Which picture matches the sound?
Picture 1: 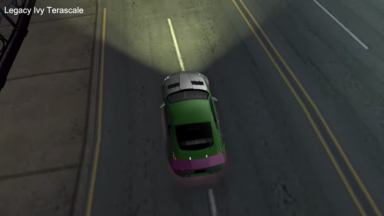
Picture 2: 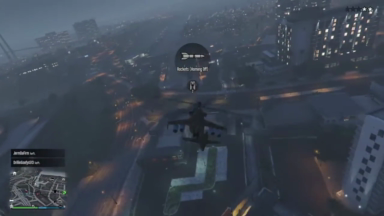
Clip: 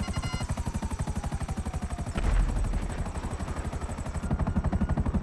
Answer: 2